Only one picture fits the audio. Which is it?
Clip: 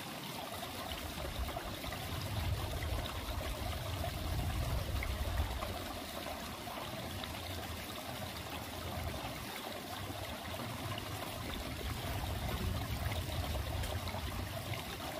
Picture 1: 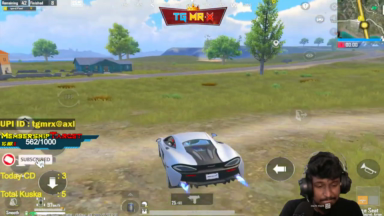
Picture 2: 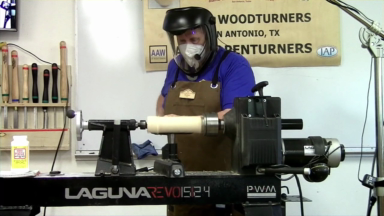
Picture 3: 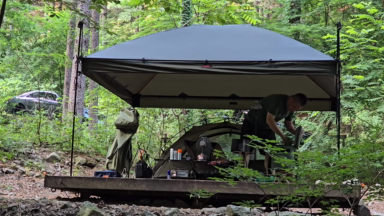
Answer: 3